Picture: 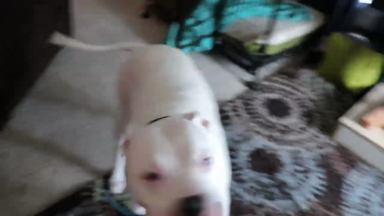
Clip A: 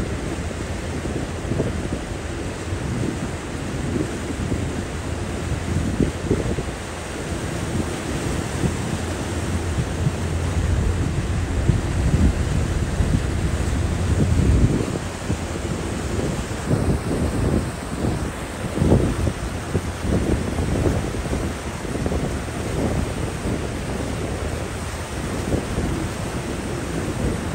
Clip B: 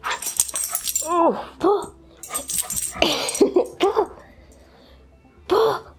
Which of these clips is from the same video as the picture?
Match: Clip B